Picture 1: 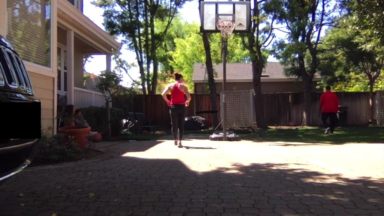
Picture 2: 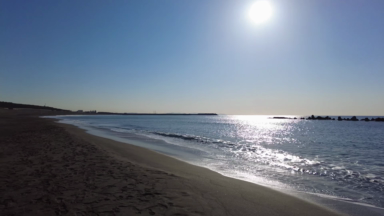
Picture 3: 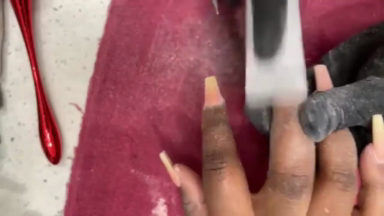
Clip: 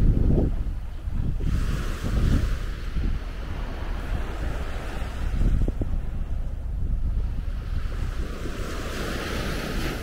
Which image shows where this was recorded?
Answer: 2